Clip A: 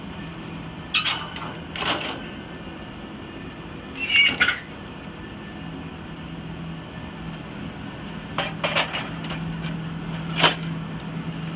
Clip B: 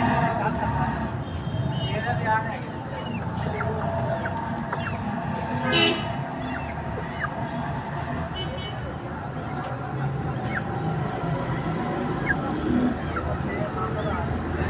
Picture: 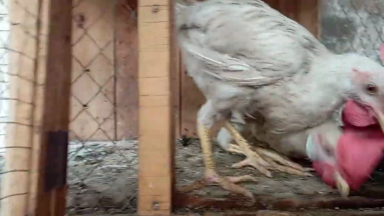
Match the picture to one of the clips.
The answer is B